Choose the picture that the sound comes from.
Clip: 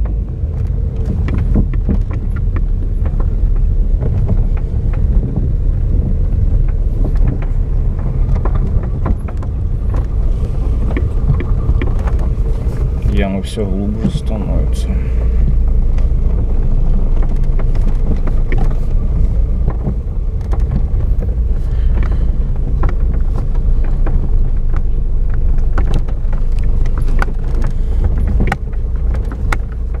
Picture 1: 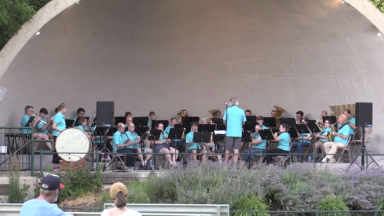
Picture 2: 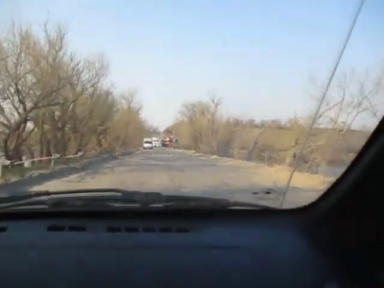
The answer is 2